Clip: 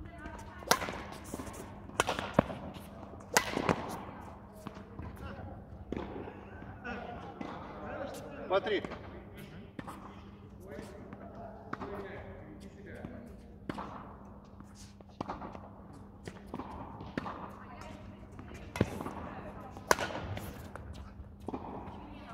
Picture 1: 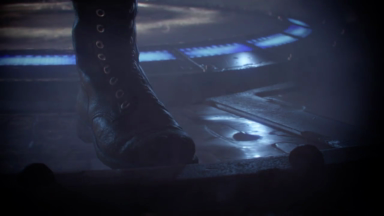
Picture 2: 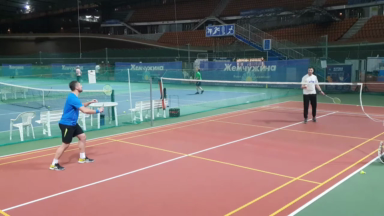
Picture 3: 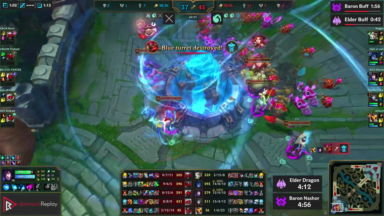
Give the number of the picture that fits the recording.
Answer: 2